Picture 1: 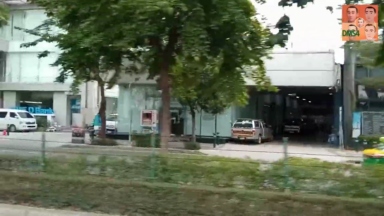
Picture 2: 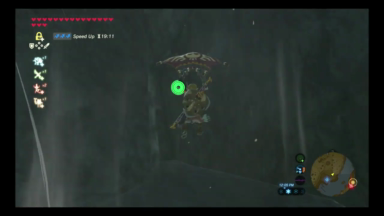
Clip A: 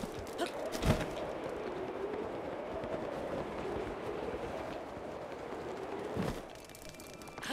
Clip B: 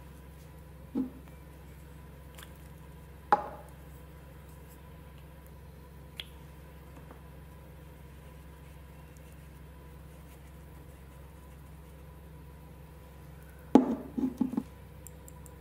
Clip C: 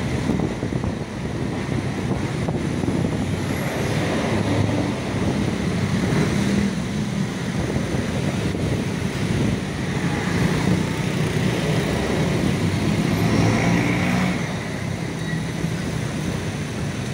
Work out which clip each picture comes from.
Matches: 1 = C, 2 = A